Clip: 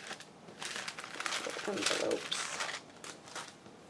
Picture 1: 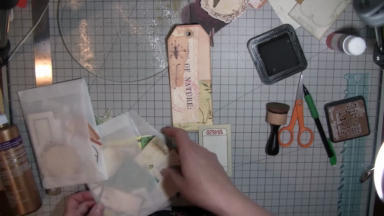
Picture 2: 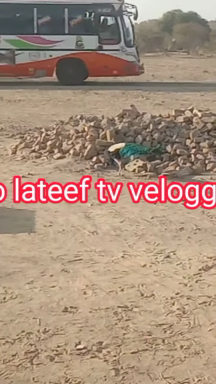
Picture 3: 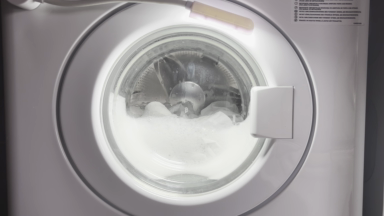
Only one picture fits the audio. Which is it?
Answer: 1